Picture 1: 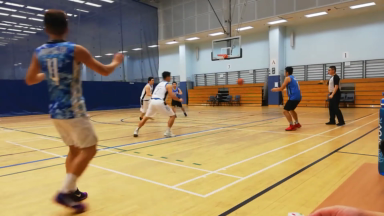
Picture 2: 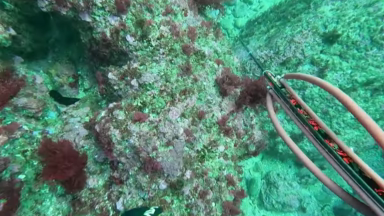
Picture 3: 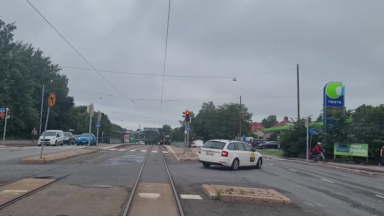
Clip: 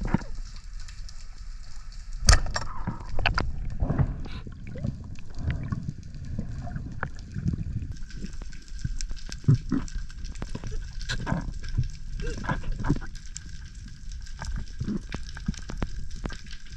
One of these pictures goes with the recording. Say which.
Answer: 2